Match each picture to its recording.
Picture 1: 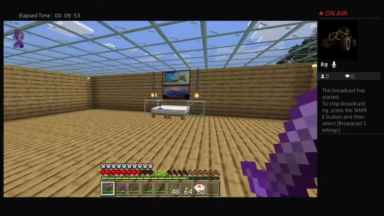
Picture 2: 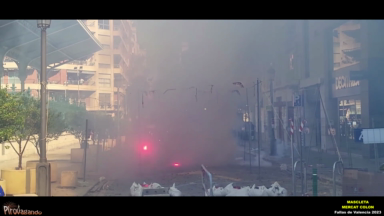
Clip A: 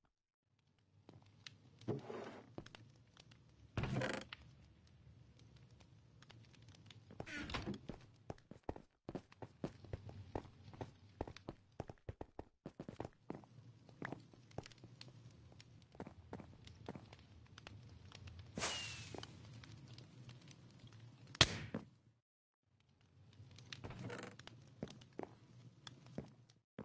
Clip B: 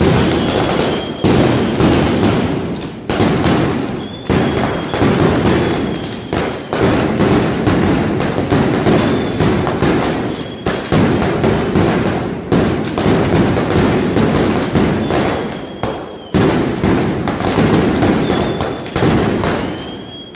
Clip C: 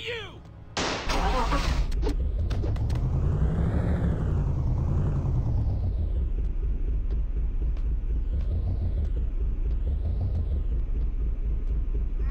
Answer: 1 A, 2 B